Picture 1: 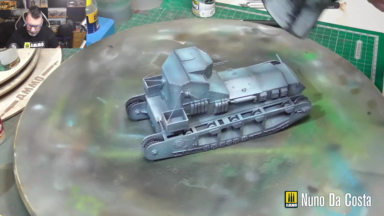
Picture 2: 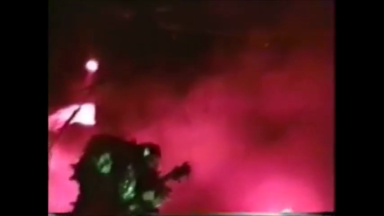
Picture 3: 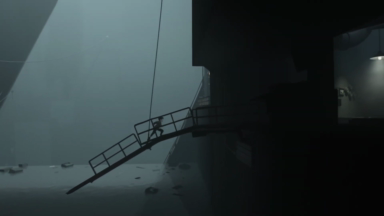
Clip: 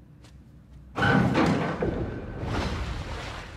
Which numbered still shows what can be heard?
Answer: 3